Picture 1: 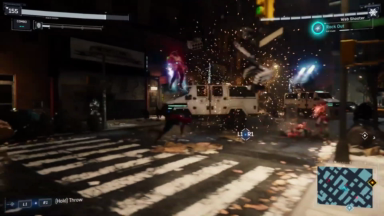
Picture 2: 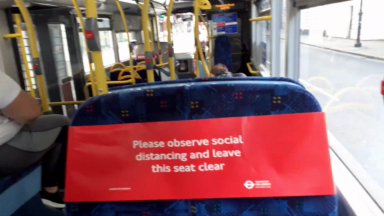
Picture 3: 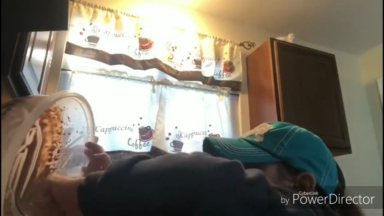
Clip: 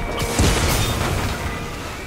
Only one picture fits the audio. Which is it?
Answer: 1